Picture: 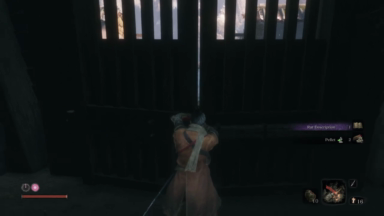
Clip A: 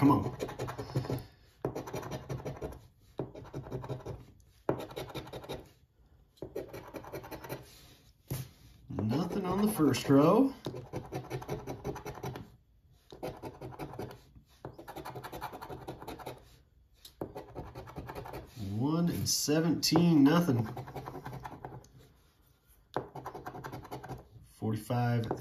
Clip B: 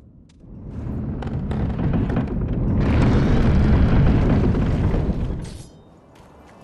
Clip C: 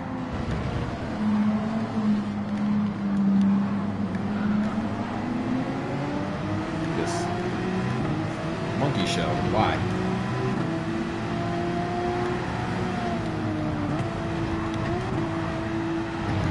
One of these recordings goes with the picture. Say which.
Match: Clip B